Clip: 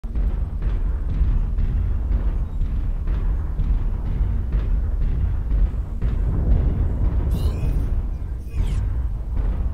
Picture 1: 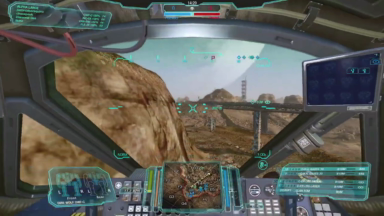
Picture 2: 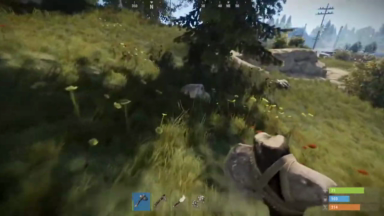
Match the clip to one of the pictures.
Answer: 1